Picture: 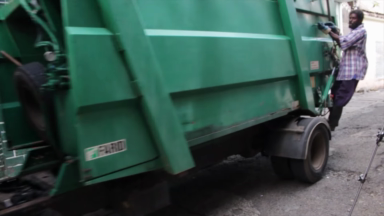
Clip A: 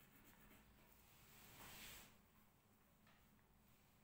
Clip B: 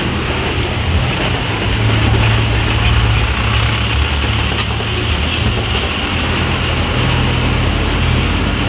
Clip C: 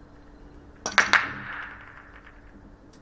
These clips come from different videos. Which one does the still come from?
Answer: B